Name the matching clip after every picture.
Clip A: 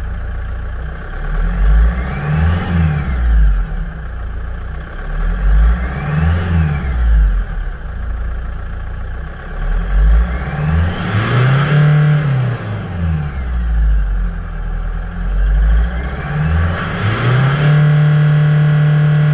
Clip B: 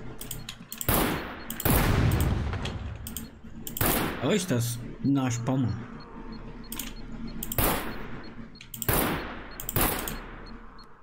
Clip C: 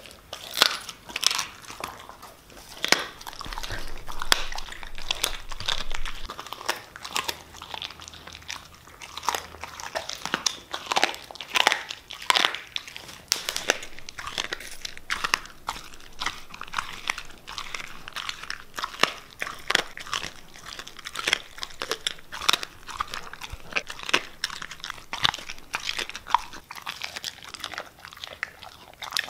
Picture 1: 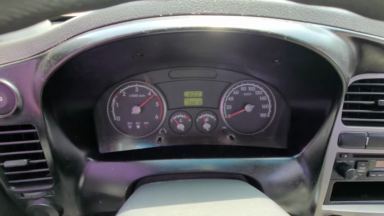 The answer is A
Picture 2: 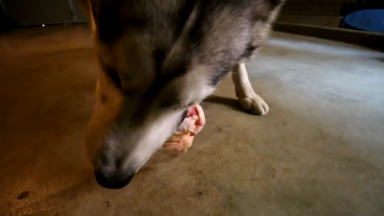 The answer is C